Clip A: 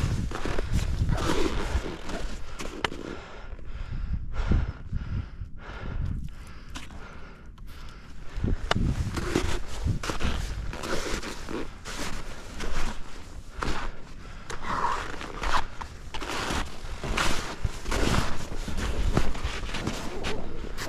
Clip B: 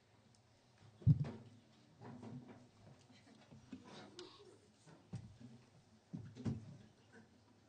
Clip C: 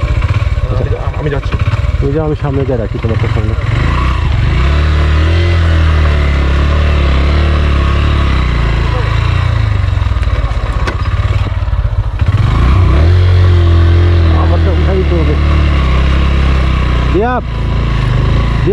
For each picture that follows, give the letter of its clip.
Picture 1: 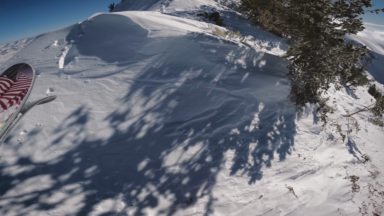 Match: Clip A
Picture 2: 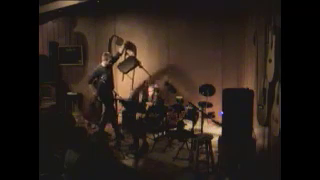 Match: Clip B